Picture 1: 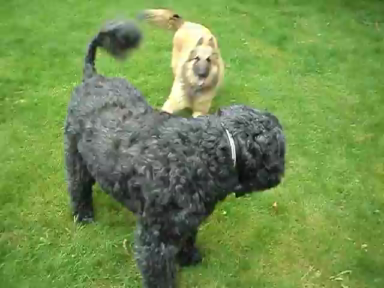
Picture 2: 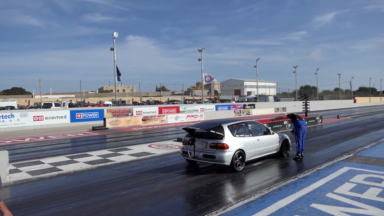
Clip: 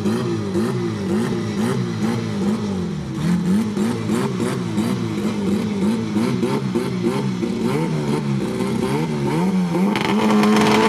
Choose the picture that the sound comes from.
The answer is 2